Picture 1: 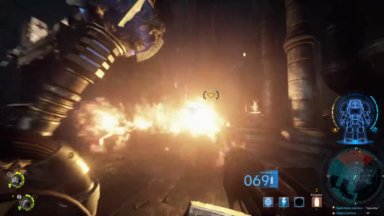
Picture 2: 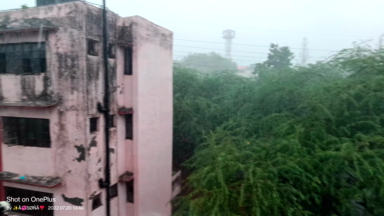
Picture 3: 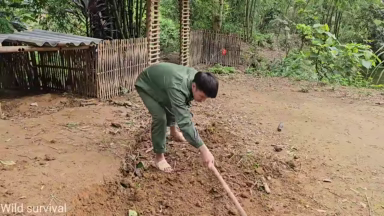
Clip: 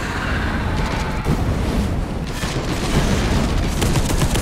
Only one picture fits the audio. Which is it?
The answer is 1